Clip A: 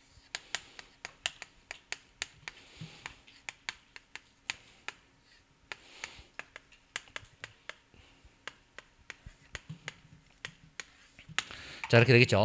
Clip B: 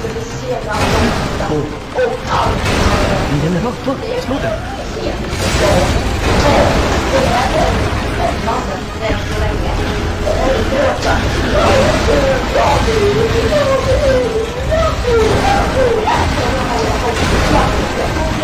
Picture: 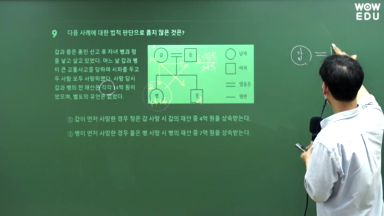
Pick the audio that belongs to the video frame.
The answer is A